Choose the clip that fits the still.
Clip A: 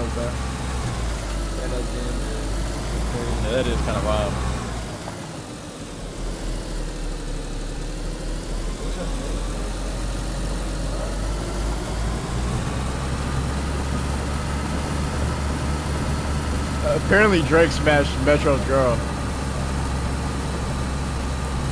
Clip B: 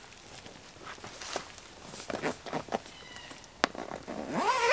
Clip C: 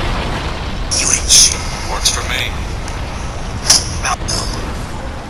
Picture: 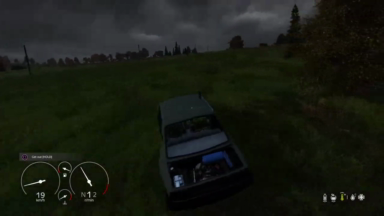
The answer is A